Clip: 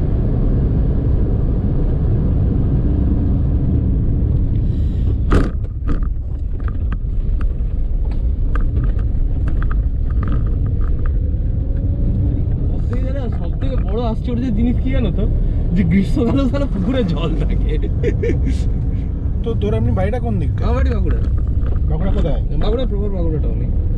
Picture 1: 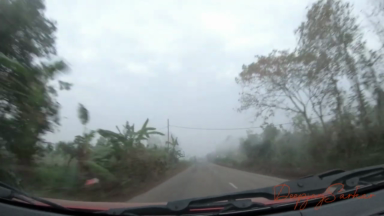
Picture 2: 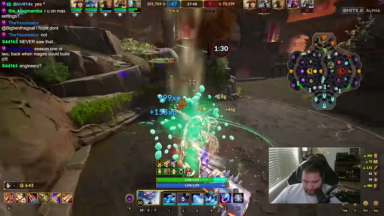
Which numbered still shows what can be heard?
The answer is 1